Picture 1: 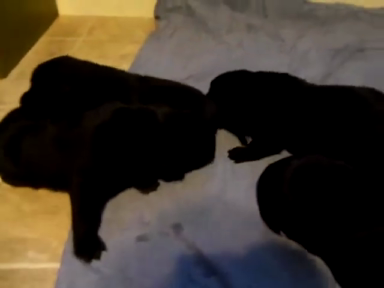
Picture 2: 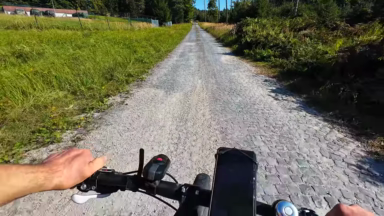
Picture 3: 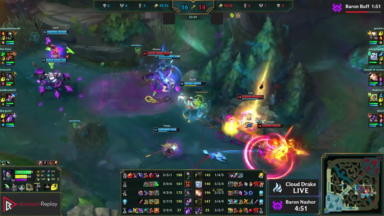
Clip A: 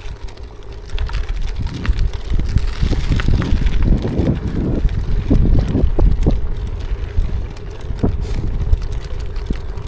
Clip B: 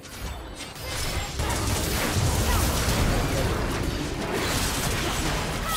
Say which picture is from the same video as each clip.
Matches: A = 2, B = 3